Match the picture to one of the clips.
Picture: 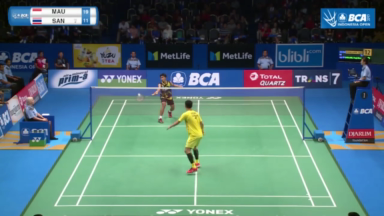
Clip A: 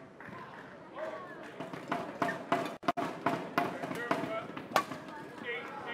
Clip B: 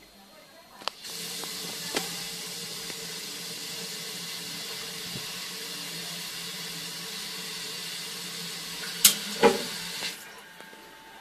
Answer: A